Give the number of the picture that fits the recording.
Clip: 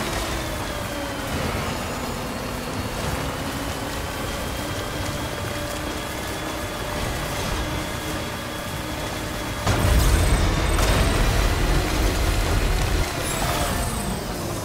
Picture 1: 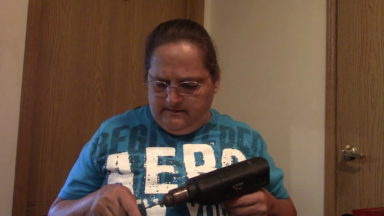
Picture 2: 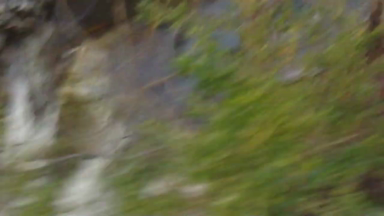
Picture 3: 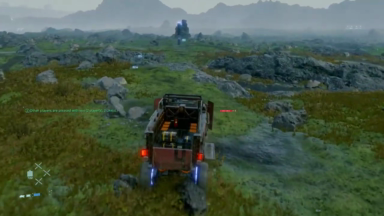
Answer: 3